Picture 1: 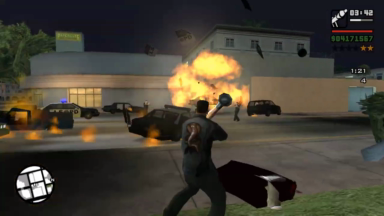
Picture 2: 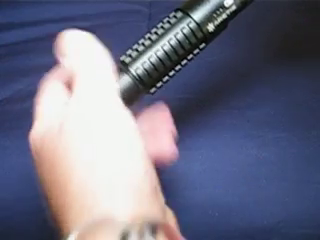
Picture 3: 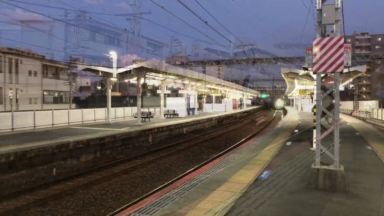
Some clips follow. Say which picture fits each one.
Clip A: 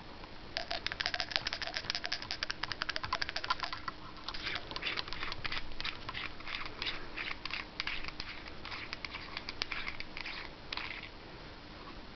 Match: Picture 2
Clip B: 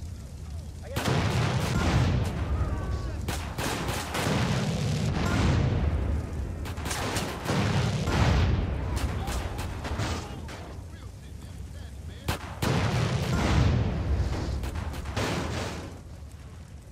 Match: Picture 1